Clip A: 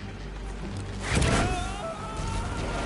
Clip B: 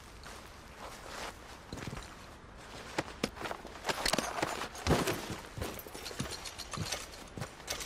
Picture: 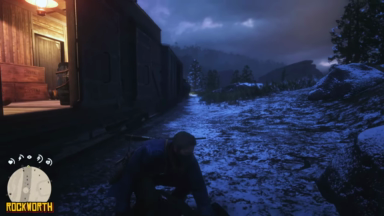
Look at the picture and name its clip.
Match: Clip B